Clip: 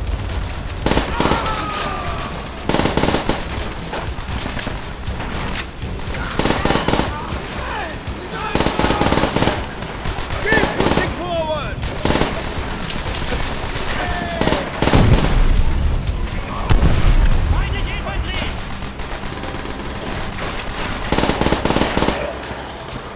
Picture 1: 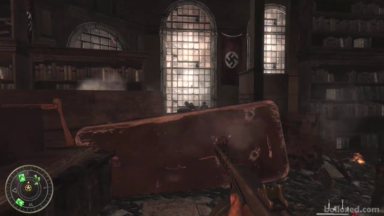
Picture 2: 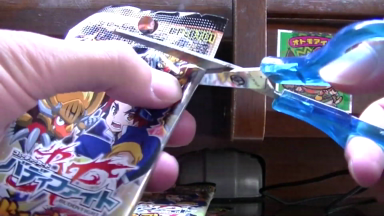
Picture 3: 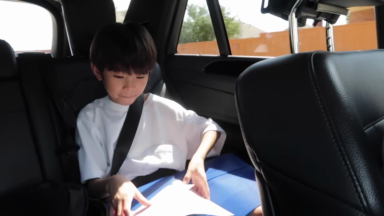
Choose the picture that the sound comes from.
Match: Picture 1